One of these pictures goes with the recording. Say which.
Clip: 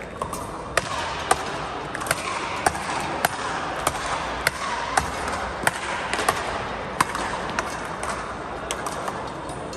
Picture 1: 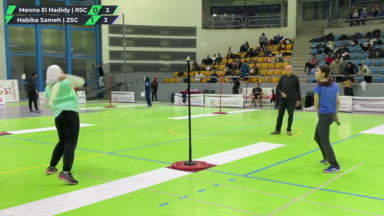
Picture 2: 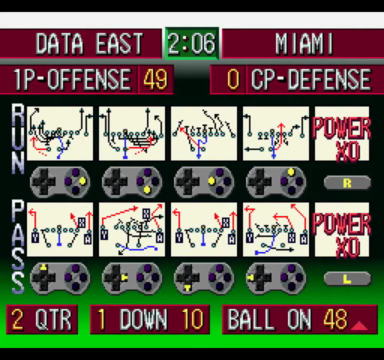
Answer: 1